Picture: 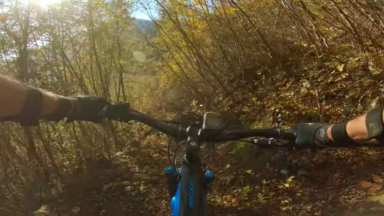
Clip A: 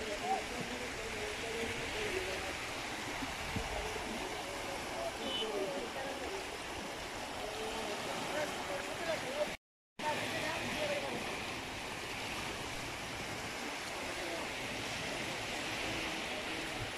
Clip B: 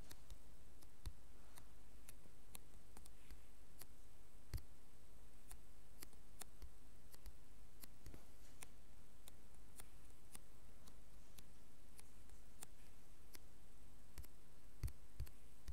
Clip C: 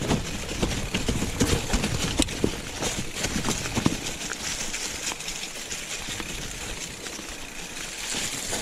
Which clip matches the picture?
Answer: C